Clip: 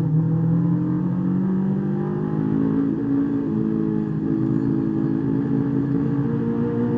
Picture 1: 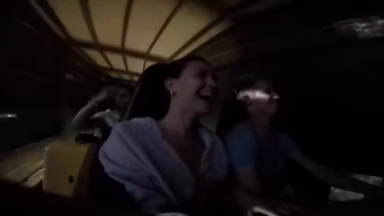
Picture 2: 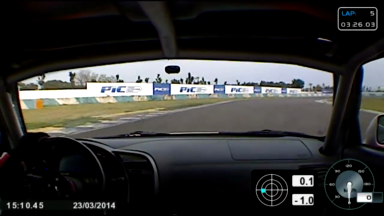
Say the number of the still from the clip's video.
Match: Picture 2